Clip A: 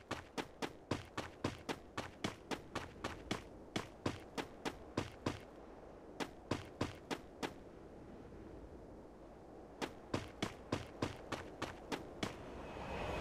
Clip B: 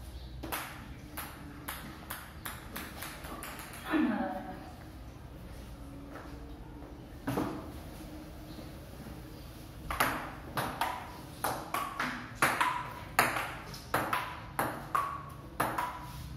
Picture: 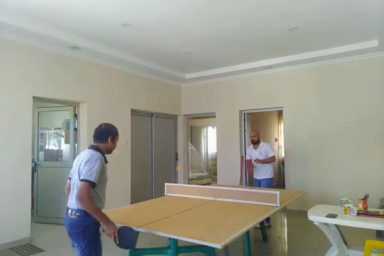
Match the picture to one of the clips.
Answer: B